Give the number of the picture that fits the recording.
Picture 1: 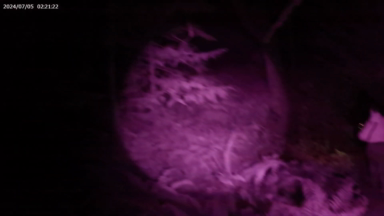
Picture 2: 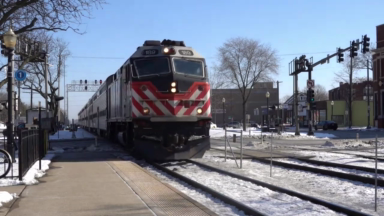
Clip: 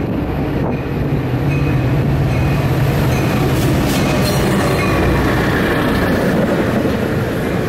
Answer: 2